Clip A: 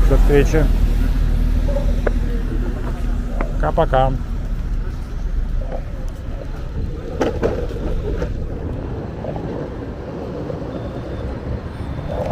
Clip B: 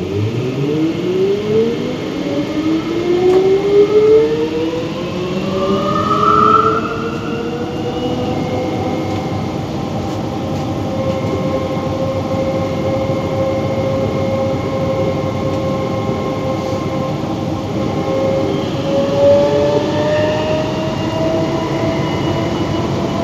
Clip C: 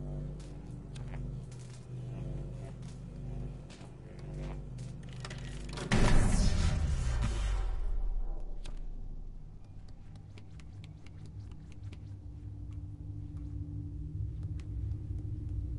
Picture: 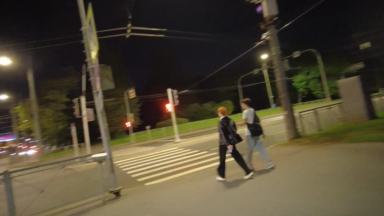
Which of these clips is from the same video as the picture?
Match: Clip A